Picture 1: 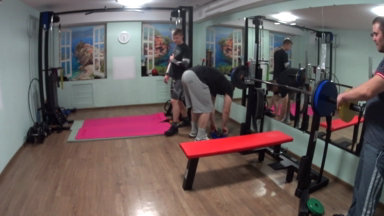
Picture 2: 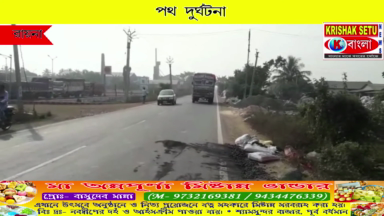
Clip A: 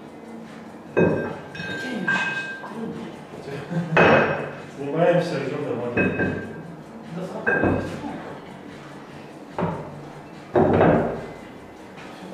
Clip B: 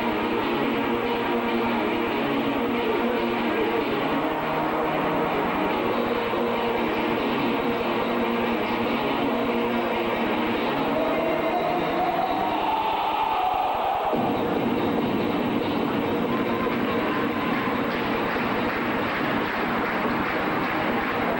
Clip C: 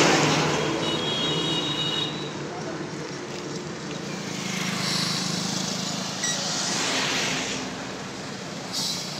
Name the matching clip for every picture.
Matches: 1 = A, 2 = C